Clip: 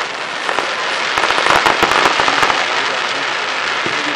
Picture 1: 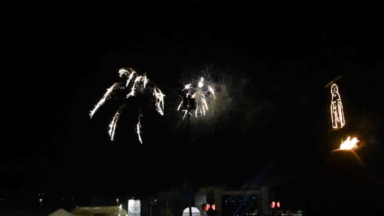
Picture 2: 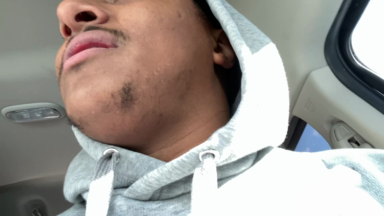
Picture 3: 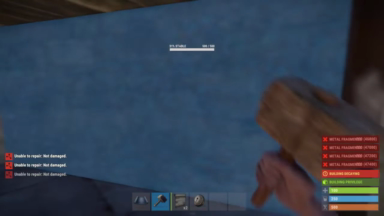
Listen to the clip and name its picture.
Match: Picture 1